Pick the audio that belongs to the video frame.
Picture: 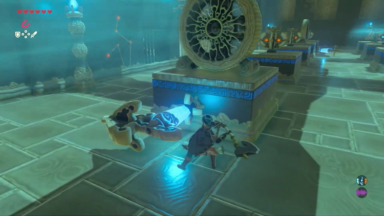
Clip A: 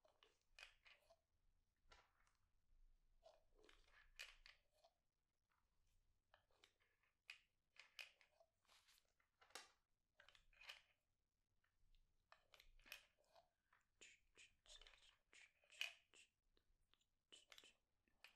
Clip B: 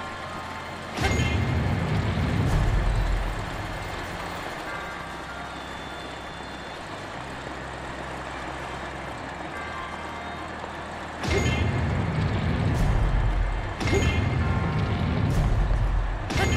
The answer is B